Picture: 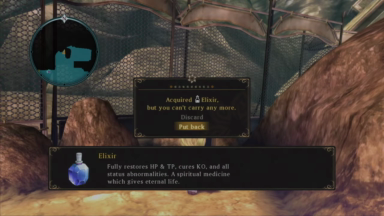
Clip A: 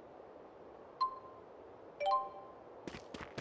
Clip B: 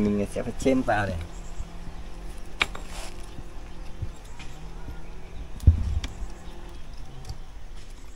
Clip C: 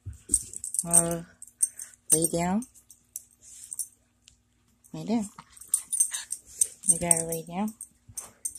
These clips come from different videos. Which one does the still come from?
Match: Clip A